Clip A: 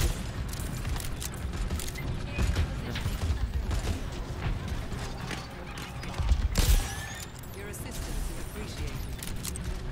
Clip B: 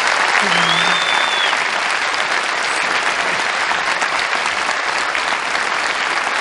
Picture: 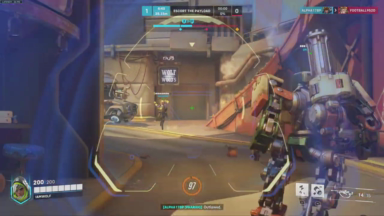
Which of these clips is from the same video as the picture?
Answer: A